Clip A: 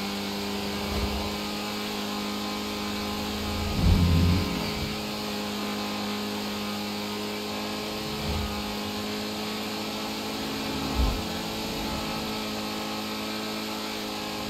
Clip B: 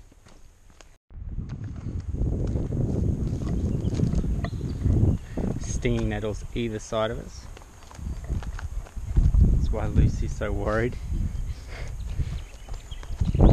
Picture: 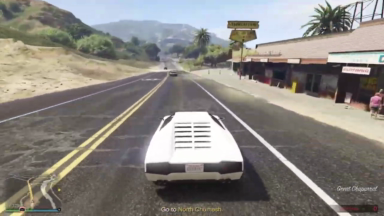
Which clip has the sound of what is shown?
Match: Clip A